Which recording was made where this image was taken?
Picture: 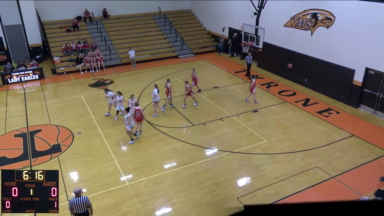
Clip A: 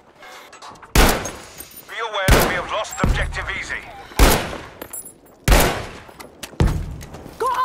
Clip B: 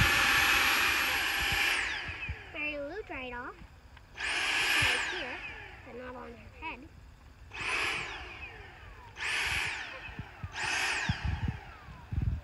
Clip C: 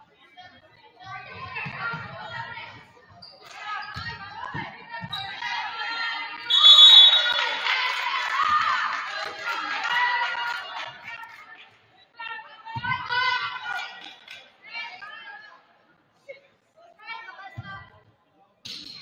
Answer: C